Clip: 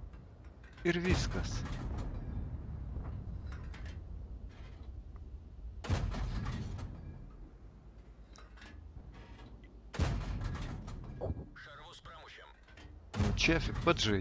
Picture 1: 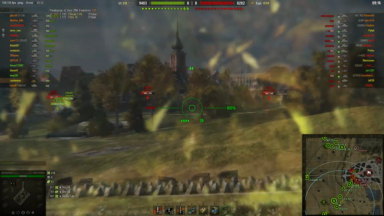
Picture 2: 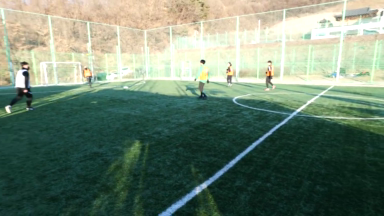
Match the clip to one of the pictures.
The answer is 1